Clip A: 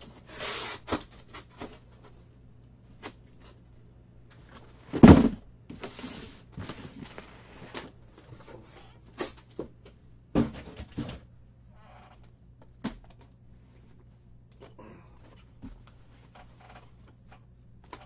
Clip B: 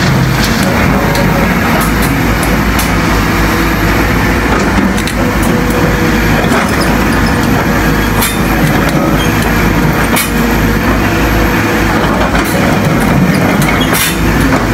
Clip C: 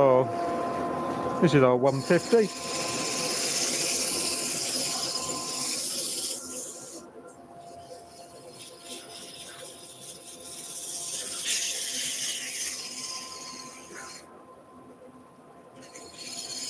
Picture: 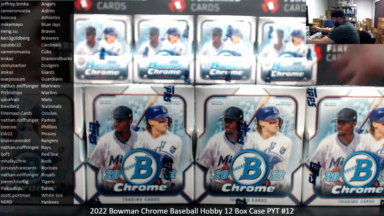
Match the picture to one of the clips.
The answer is A